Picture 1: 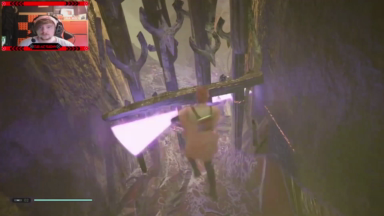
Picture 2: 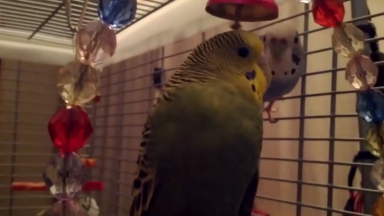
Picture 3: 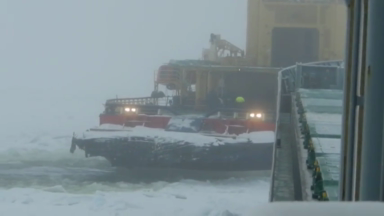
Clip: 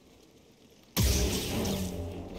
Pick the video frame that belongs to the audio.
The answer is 1